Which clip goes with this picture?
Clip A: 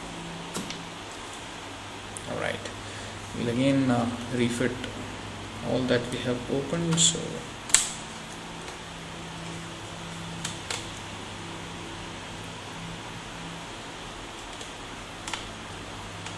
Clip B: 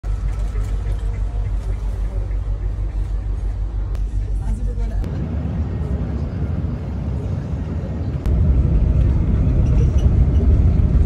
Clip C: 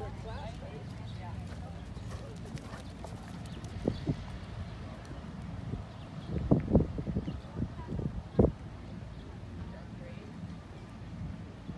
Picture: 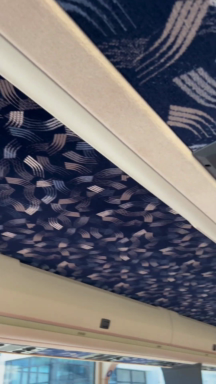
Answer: B